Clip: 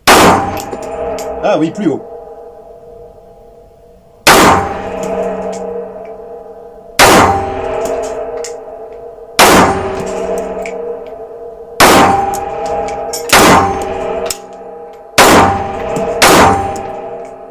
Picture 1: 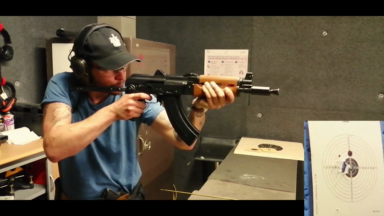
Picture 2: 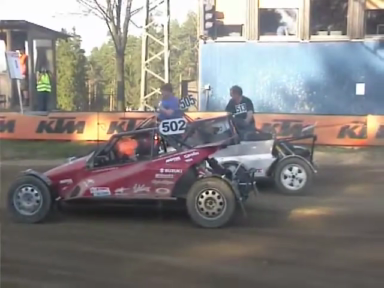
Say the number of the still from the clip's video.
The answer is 1